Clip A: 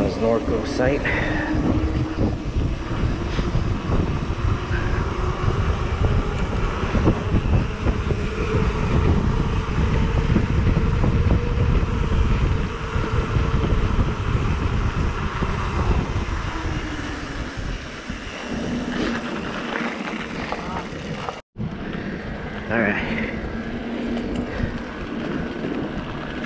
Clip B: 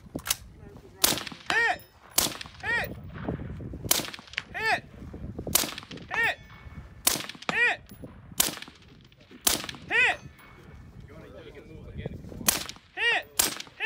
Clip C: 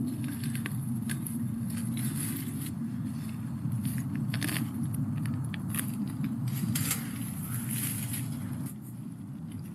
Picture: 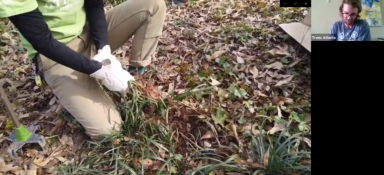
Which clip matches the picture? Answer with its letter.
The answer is C